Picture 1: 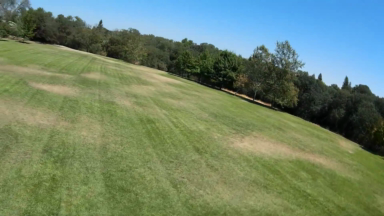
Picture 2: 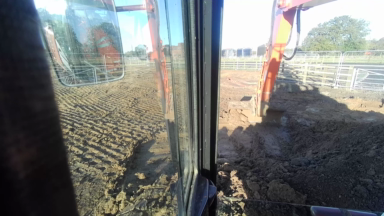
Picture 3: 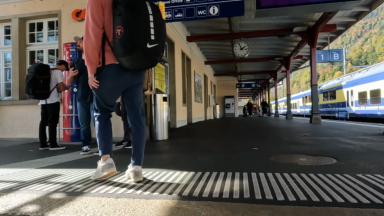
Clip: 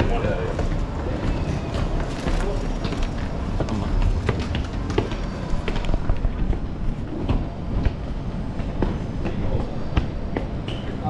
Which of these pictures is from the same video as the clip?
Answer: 3